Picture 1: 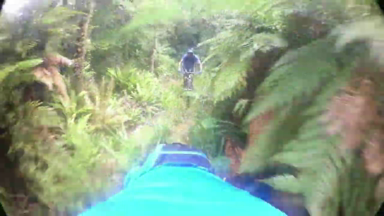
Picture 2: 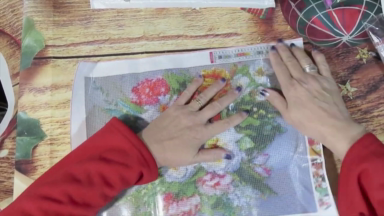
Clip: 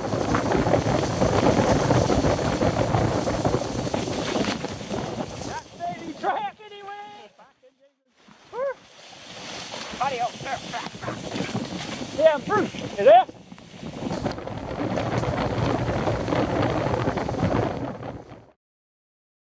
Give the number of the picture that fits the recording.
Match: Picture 1